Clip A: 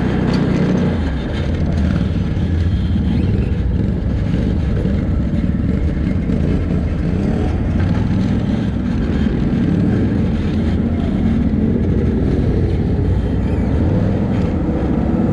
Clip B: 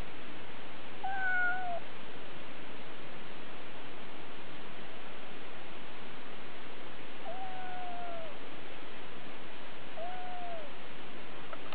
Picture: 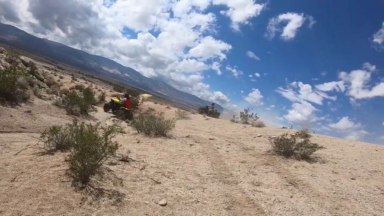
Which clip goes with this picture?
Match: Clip A